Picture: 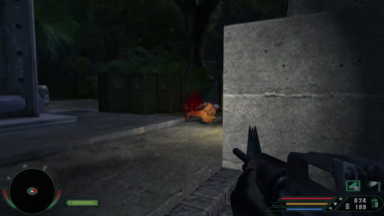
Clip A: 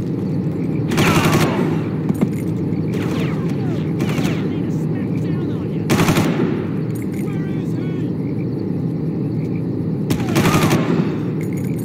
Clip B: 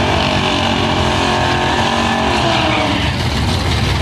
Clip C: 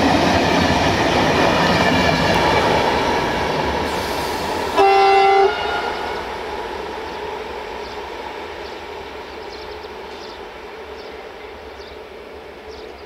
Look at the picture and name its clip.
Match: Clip A